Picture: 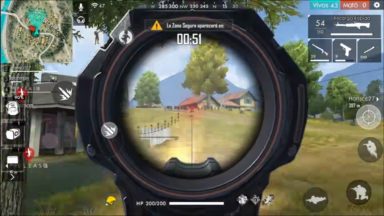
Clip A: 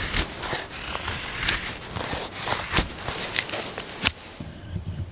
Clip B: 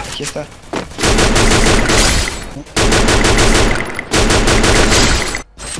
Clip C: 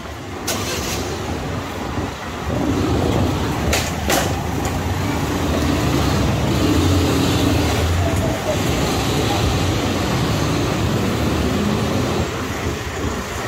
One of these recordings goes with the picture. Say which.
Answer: B